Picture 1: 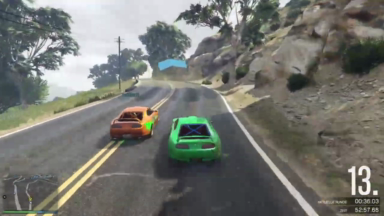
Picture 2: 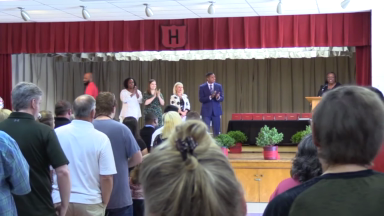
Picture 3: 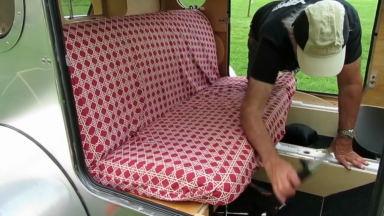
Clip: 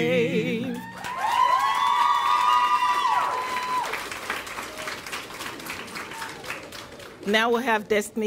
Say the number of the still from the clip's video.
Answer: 2